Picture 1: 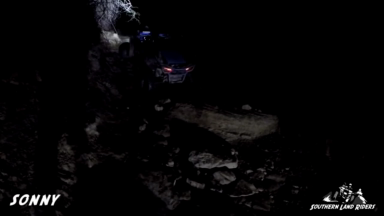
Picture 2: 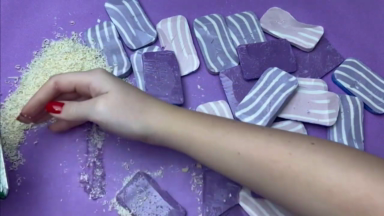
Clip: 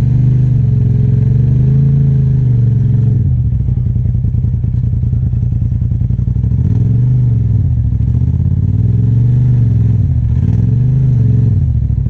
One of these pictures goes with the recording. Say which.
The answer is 1